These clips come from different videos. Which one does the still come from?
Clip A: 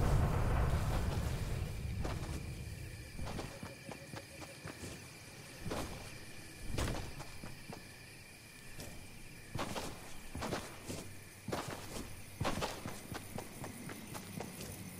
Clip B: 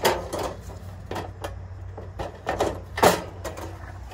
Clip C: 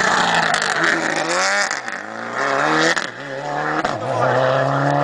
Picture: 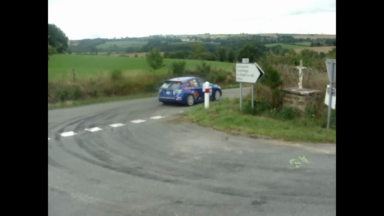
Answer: C